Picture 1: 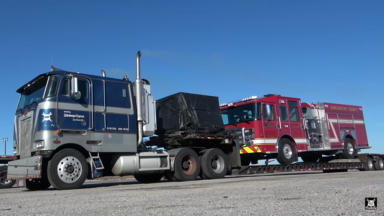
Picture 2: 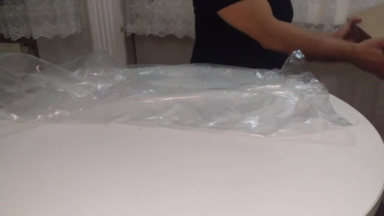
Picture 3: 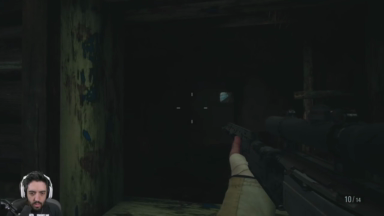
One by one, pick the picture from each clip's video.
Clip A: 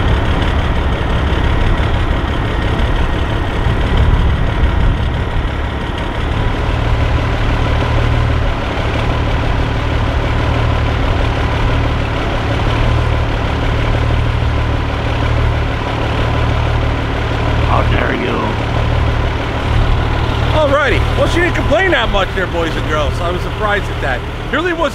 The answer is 1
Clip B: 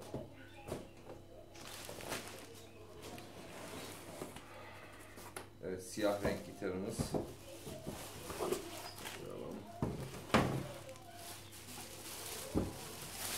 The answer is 2